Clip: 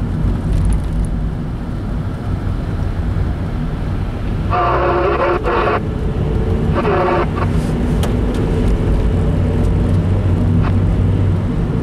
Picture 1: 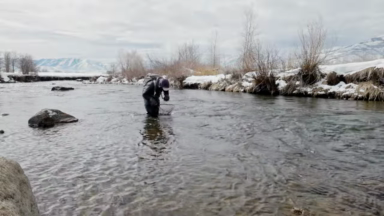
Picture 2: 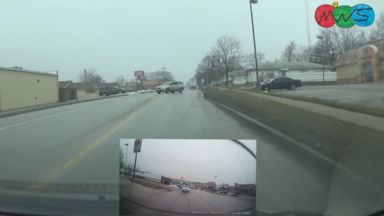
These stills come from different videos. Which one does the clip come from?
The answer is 2